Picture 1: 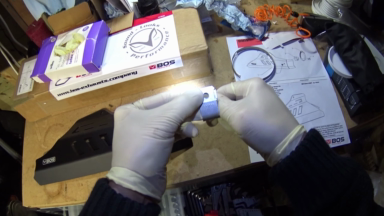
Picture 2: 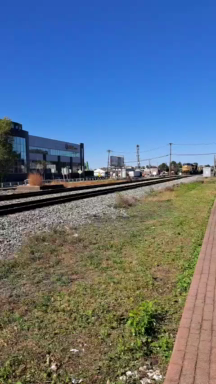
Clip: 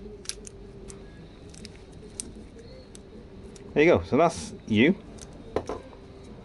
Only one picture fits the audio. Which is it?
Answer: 1